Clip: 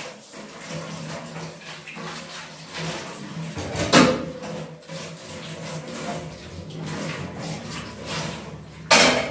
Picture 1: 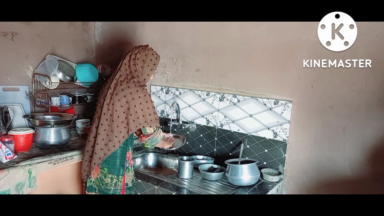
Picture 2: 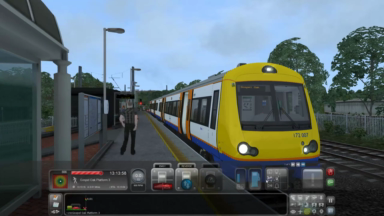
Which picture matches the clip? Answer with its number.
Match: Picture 1